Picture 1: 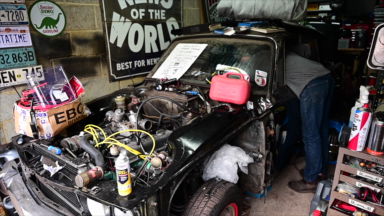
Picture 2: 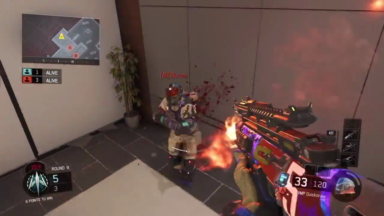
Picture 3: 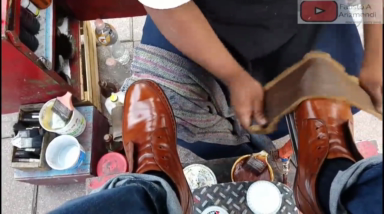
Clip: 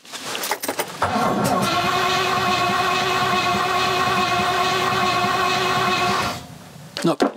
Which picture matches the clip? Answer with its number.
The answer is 1